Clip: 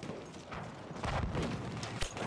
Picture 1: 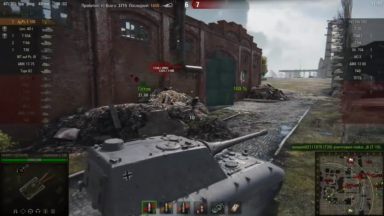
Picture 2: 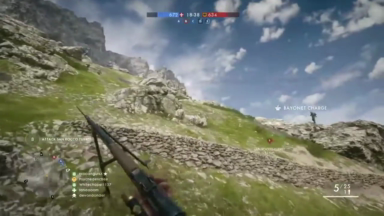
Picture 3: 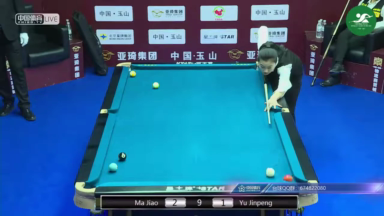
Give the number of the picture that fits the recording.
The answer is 2